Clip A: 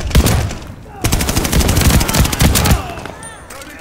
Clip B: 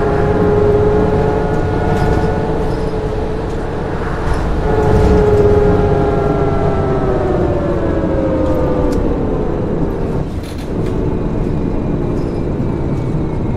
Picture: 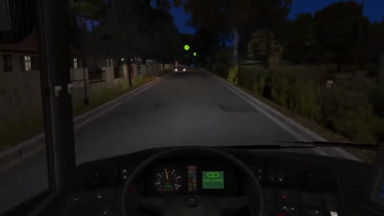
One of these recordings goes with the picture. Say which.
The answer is B